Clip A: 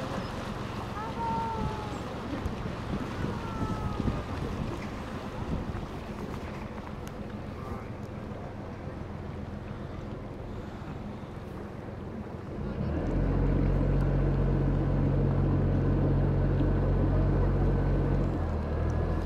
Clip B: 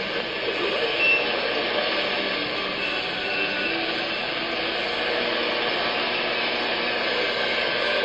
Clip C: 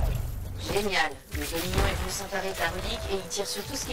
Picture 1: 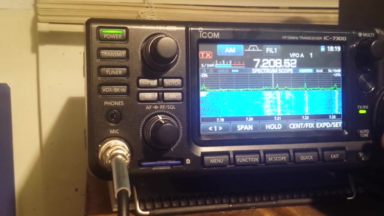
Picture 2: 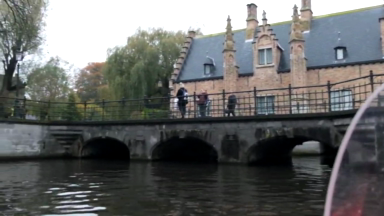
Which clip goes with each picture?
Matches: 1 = B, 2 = A